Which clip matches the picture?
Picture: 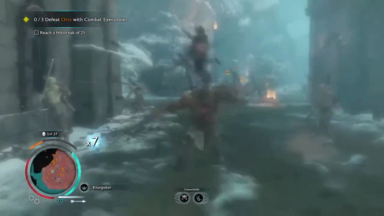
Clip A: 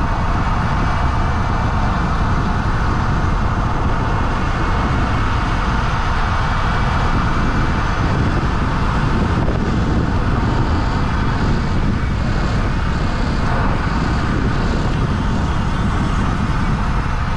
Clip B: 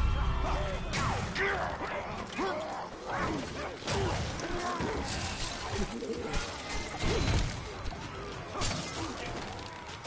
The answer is B